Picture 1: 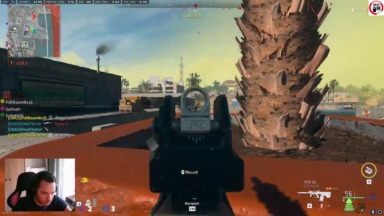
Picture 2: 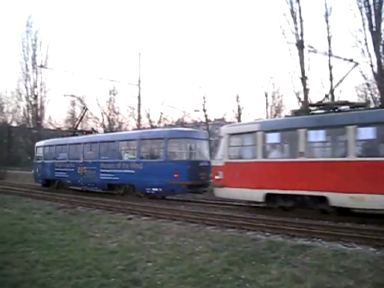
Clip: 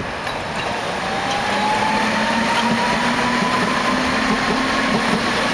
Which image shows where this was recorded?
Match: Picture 2